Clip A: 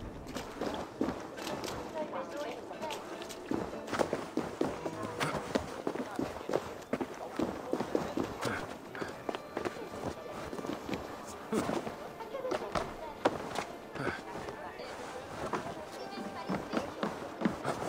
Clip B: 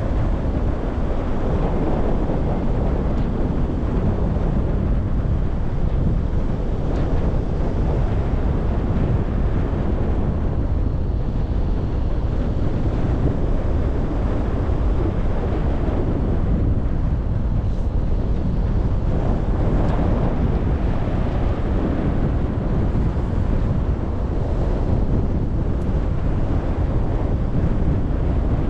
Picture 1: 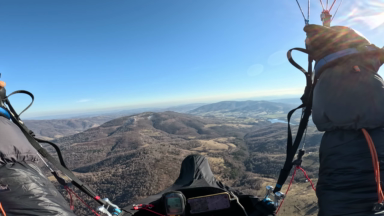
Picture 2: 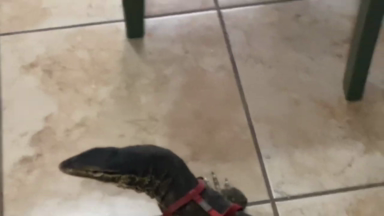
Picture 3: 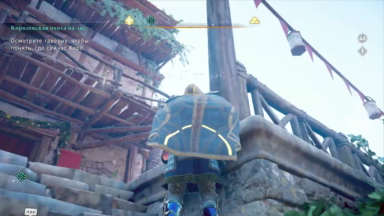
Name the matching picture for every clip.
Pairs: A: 3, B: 1